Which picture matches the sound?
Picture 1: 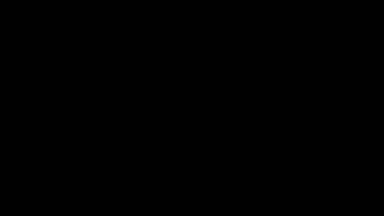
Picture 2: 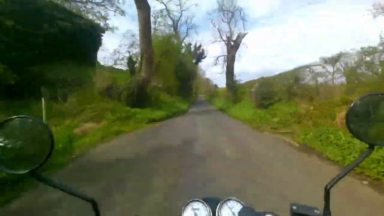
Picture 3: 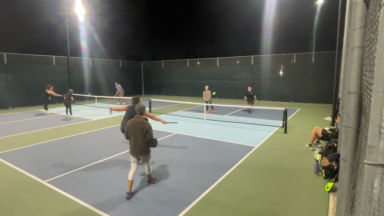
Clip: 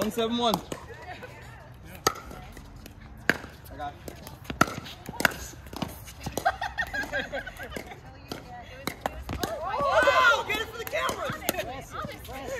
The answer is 3